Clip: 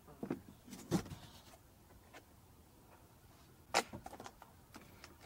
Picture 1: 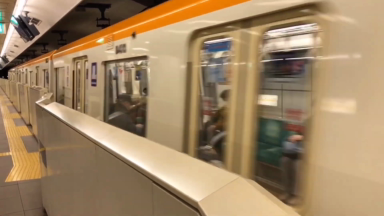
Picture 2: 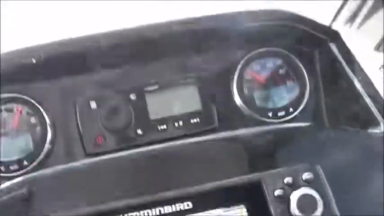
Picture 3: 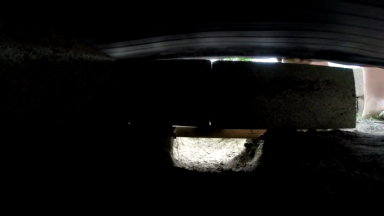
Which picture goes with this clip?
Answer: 3